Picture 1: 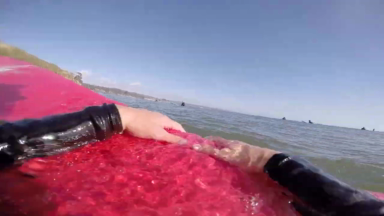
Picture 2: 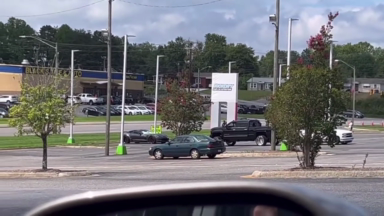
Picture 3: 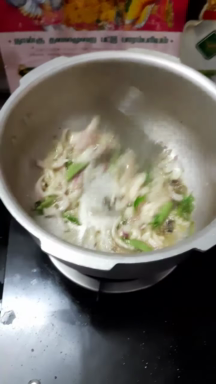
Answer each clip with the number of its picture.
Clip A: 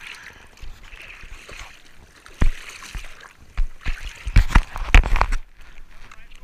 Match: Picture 1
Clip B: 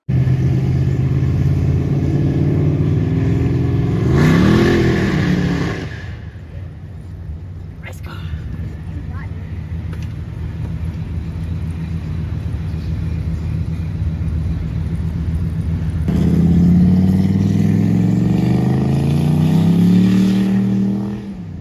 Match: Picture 2